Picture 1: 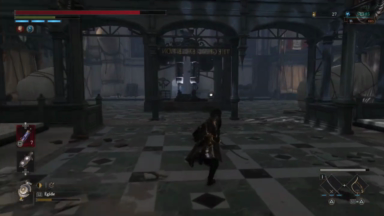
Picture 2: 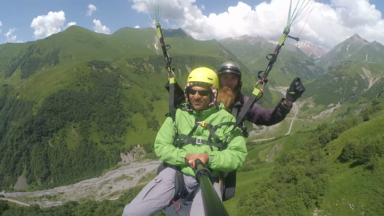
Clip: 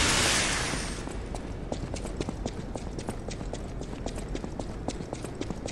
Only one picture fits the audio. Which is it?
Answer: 1